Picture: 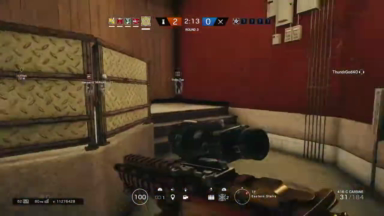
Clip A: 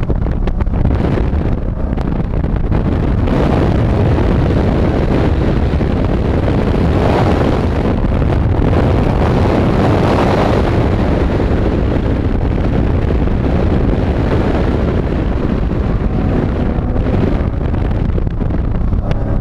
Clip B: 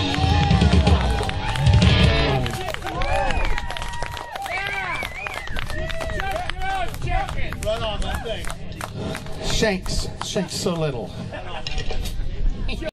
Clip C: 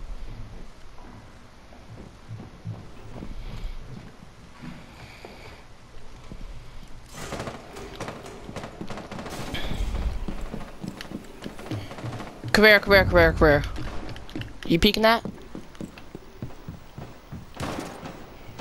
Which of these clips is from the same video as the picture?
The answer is C